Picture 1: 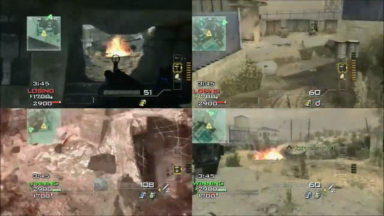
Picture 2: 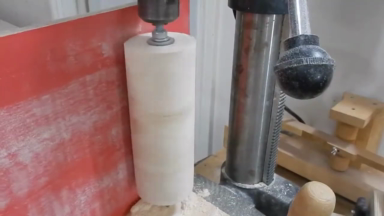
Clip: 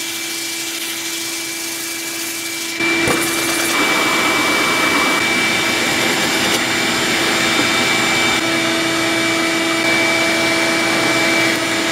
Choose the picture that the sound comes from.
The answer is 2